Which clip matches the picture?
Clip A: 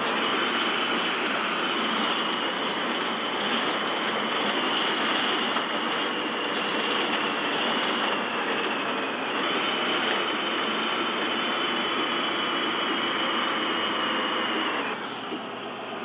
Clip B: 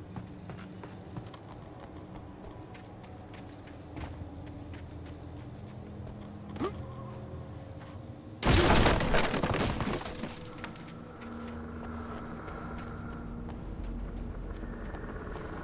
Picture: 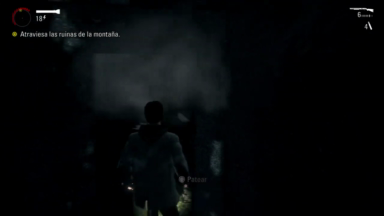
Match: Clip B